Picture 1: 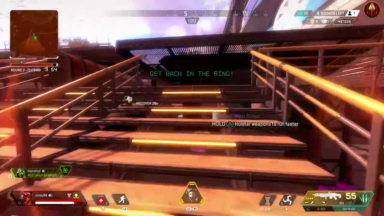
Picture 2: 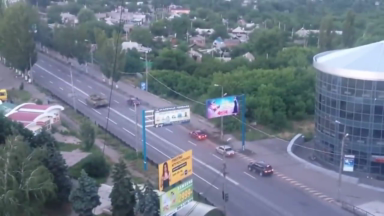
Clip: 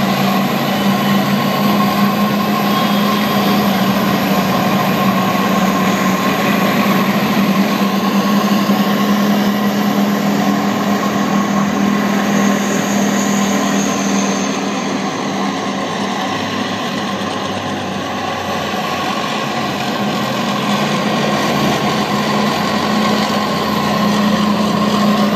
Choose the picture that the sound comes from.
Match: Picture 2